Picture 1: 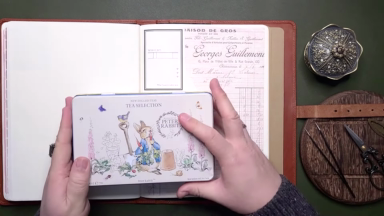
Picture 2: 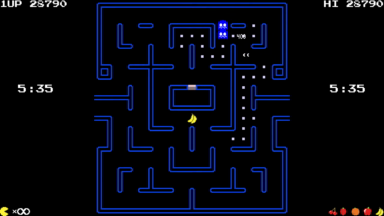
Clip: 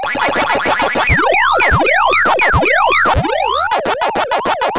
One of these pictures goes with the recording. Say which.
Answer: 2